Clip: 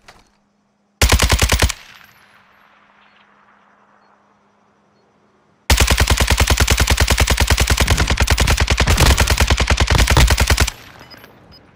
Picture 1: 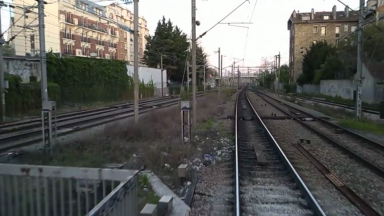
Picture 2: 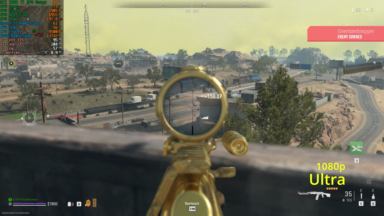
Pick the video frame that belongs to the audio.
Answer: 2